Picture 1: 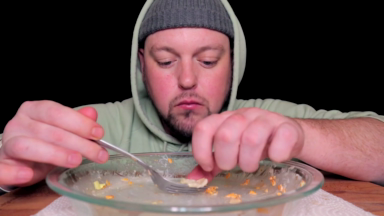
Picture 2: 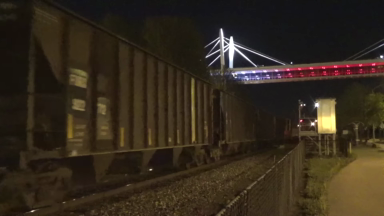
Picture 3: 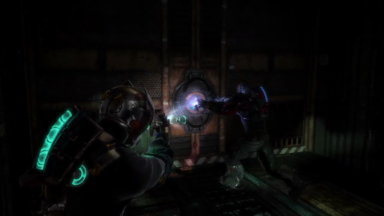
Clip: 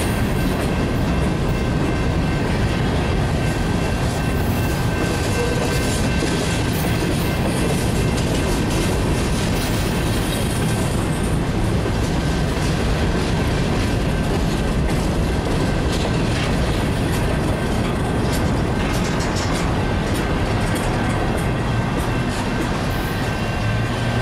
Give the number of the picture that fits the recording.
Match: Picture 2